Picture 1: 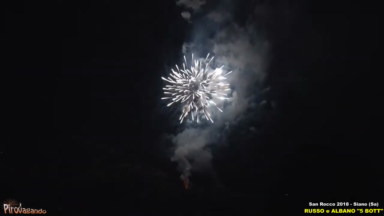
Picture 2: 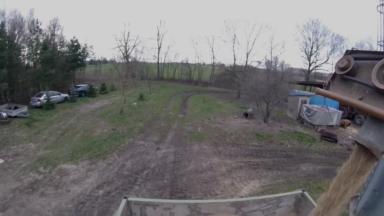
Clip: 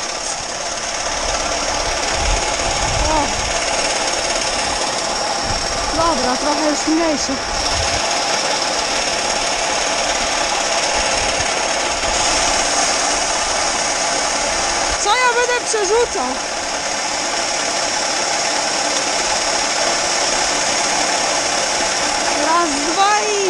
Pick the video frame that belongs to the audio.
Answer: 2